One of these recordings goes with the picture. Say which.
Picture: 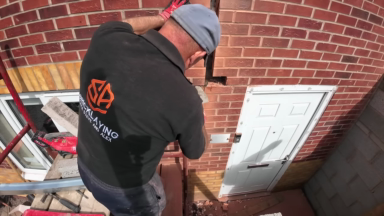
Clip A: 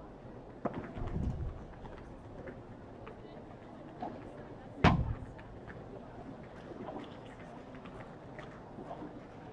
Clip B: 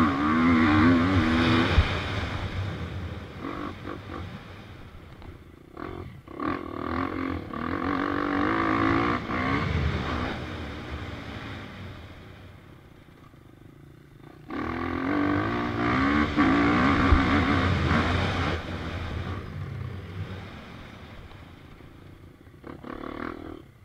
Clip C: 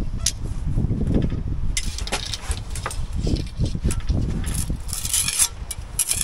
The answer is C